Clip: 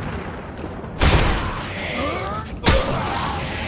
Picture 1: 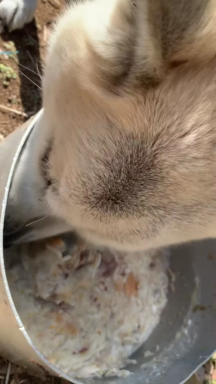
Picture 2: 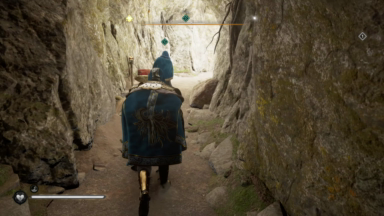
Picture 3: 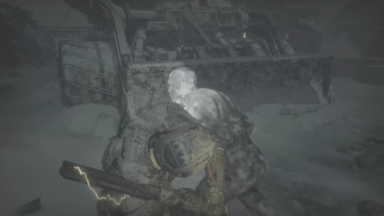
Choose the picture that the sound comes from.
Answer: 3